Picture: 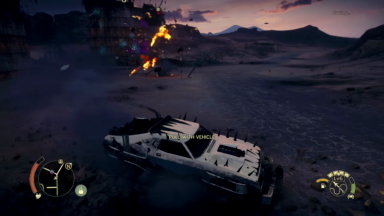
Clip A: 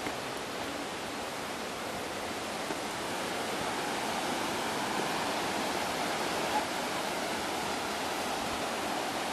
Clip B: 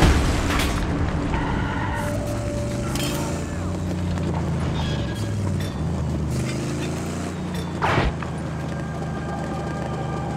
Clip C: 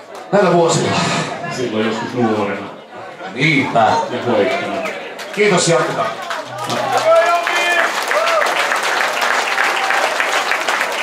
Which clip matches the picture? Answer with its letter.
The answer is B